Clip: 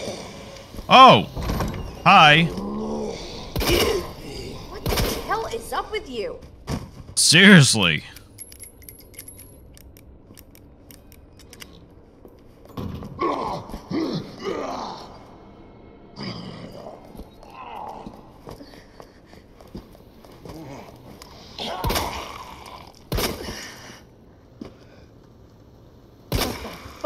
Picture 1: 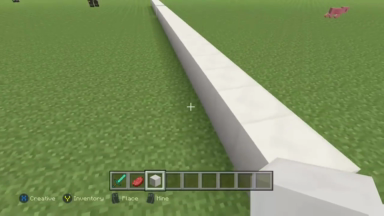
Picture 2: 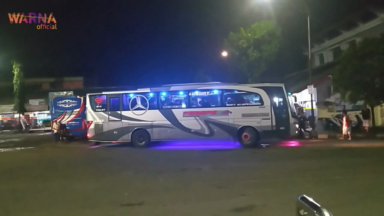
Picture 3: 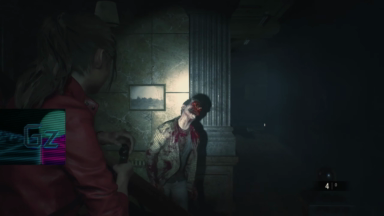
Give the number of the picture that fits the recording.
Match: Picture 3